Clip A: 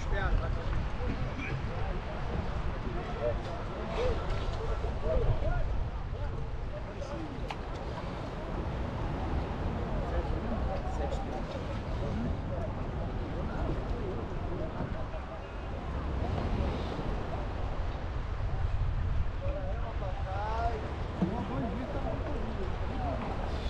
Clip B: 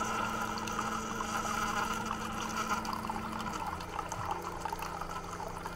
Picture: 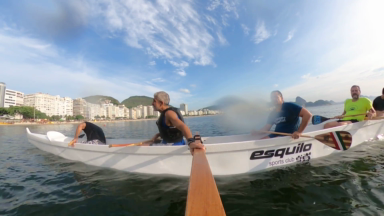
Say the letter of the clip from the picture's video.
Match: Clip A